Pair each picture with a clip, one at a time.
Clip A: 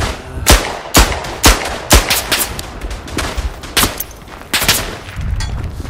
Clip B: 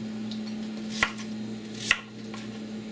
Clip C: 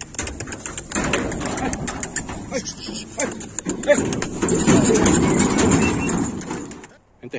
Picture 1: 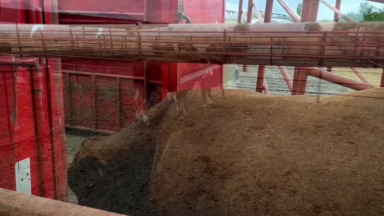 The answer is C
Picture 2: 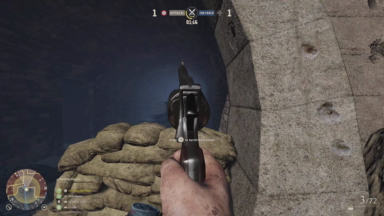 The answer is A